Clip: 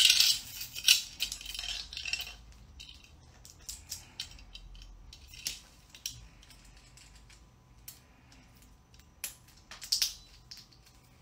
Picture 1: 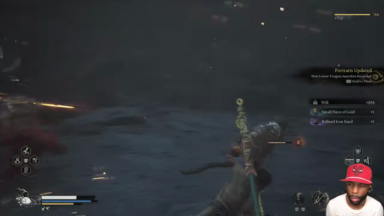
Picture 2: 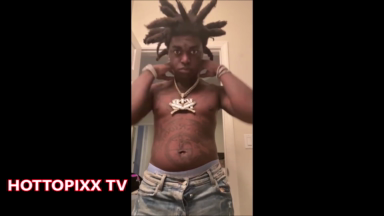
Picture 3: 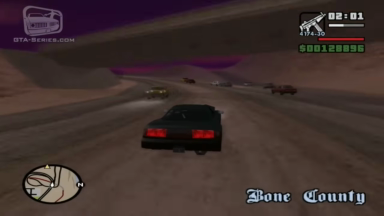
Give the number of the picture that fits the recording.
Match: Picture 2